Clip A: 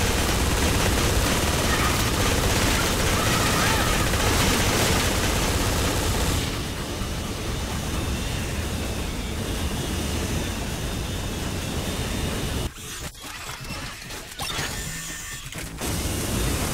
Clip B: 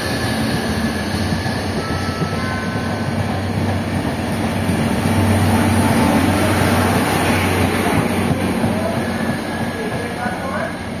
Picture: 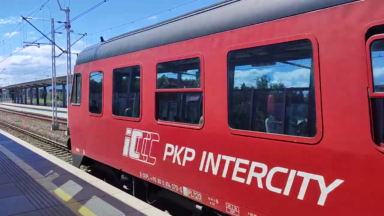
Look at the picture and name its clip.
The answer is B